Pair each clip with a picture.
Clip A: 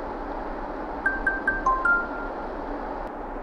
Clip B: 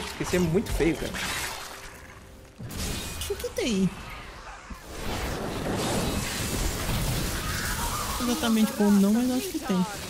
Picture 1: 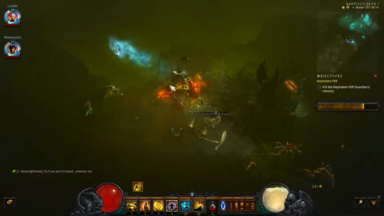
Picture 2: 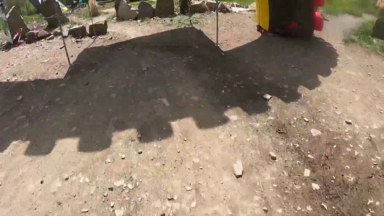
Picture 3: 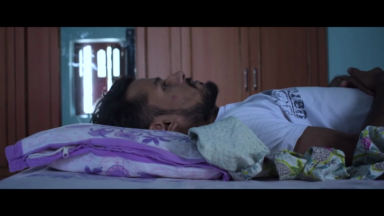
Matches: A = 3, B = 1